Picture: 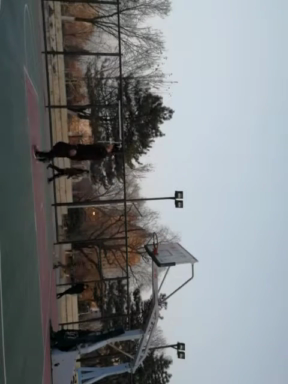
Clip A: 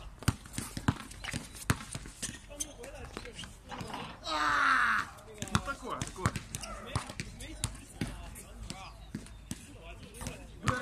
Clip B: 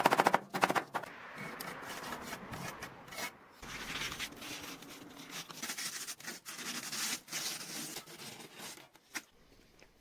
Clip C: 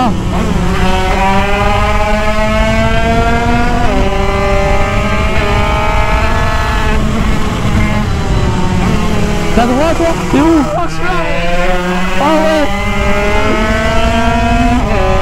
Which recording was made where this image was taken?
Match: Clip A